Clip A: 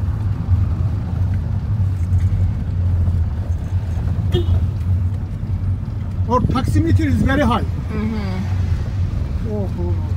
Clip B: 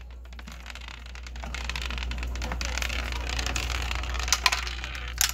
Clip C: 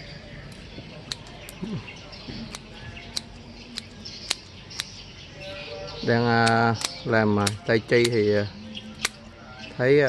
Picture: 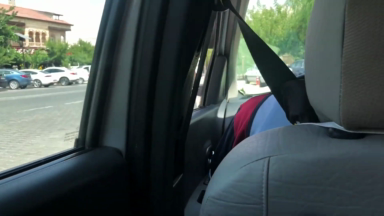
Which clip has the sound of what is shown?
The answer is A